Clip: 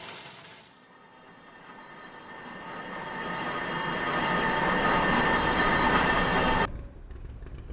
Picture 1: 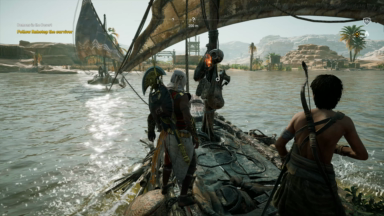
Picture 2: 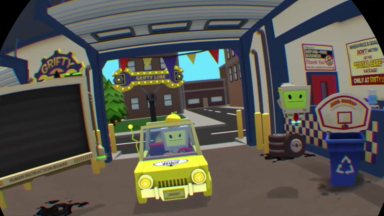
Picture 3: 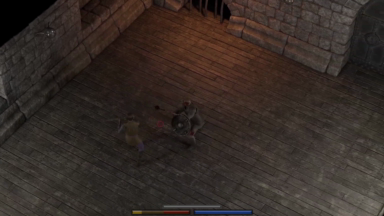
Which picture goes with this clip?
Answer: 2